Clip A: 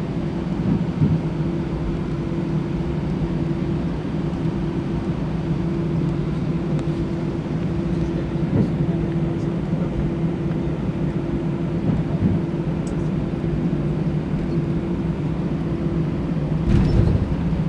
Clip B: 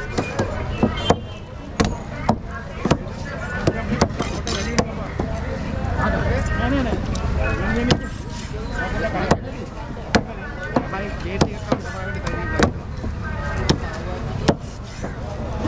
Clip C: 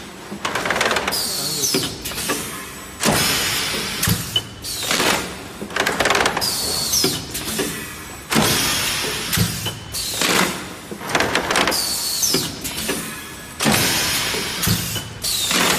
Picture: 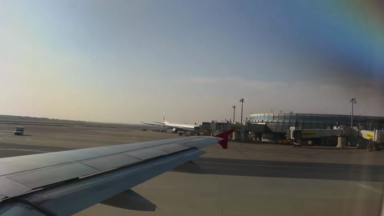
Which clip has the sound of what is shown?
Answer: A